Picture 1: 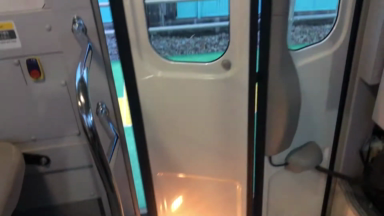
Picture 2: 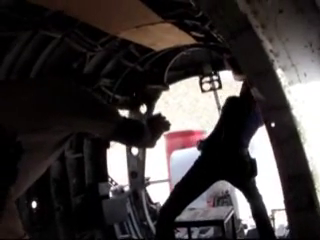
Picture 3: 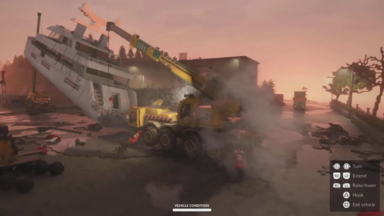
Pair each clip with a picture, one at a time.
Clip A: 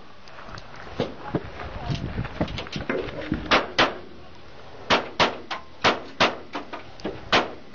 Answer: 2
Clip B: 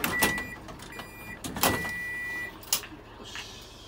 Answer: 1